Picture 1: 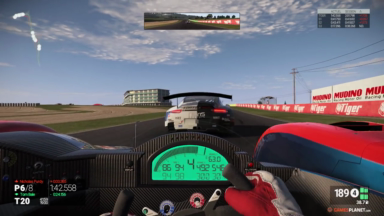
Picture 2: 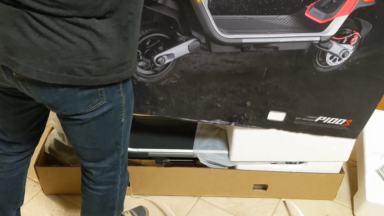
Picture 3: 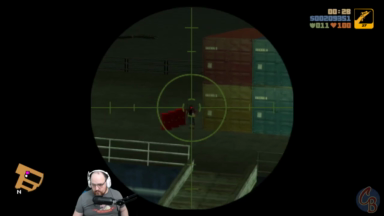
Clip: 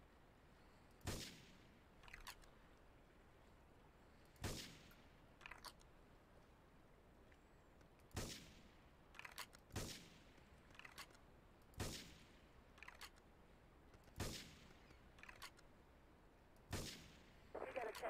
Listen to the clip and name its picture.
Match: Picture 3